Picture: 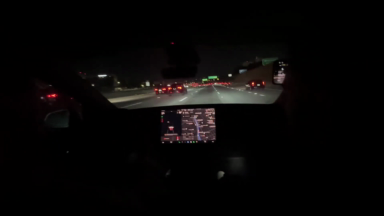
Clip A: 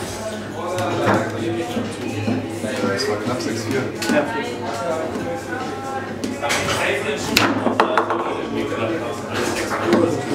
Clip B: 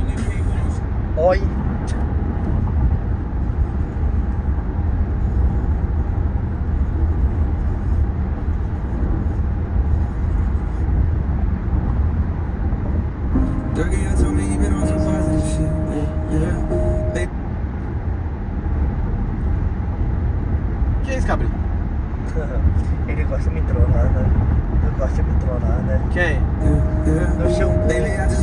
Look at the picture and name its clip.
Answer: B